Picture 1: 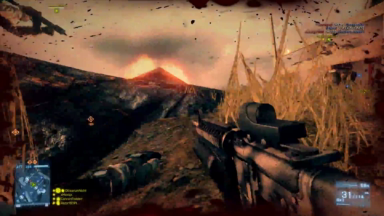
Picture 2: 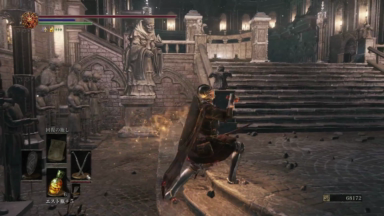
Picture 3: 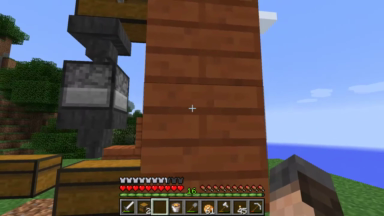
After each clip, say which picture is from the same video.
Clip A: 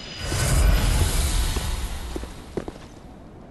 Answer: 2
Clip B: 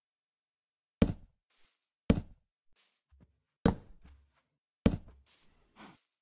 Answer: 3